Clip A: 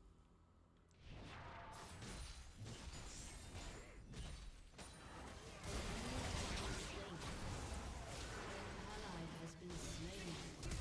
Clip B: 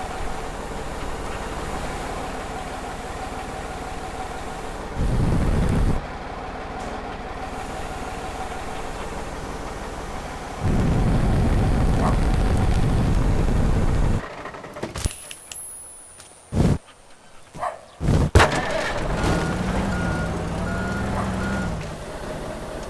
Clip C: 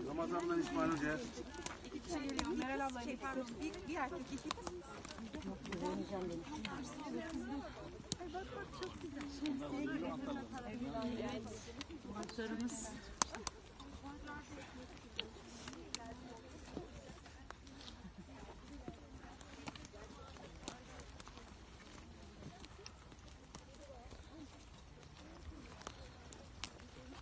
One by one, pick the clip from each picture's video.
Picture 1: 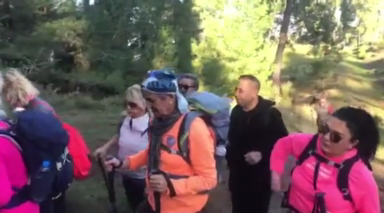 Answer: C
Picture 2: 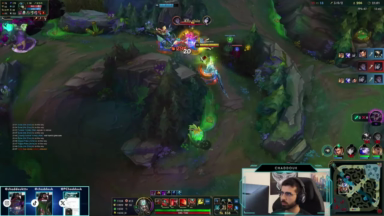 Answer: A